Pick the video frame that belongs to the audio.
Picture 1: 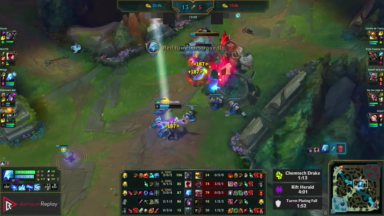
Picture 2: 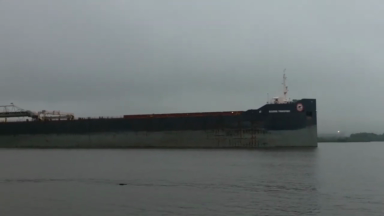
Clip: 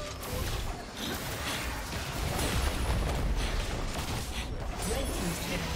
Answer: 1